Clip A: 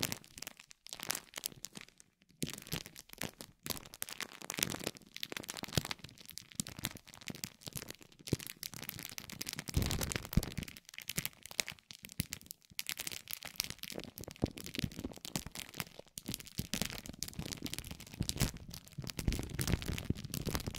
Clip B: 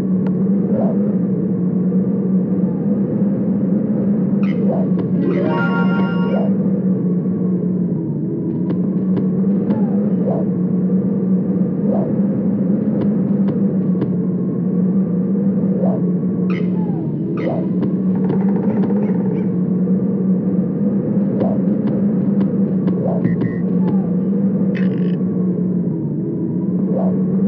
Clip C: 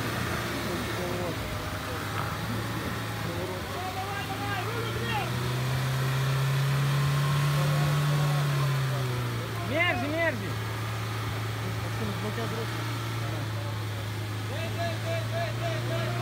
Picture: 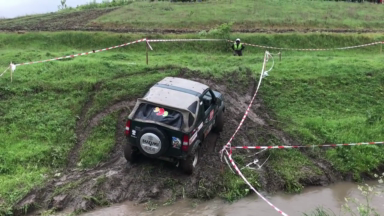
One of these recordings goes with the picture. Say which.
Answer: C